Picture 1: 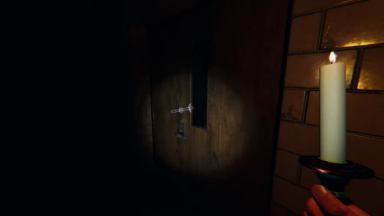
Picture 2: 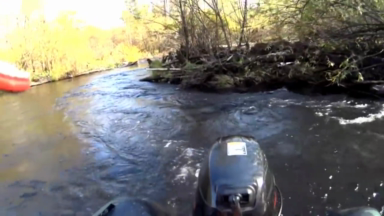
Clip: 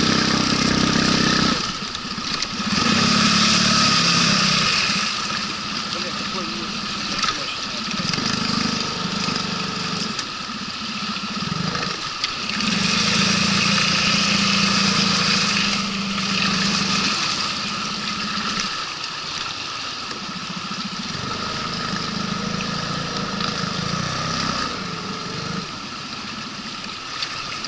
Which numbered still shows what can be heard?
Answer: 2